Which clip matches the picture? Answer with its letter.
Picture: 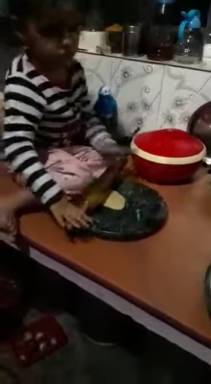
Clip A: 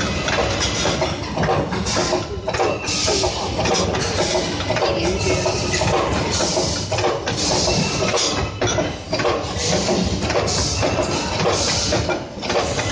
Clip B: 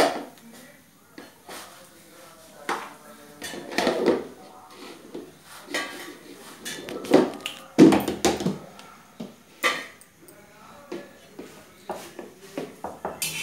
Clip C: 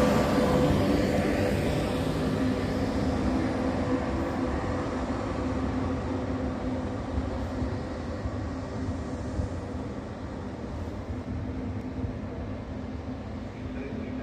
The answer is B